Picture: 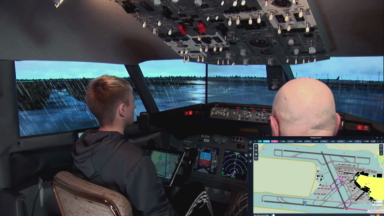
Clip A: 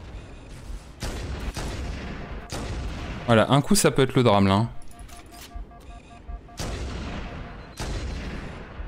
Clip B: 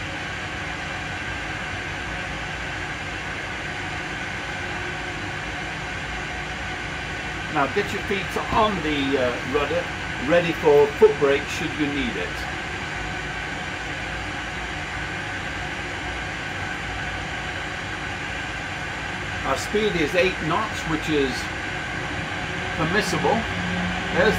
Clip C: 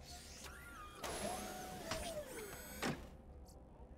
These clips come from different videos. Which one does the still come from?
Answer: B